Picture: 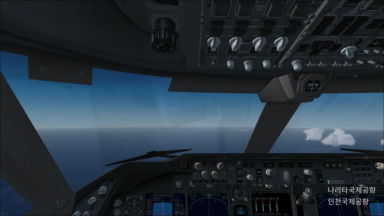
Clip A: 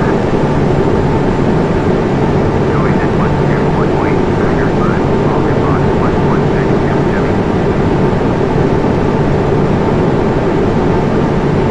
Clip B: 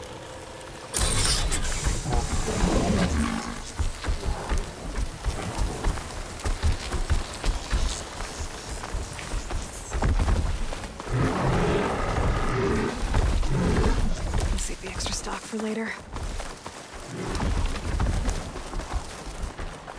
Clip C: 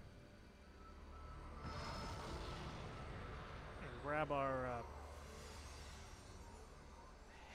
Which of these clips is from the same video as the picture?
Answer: A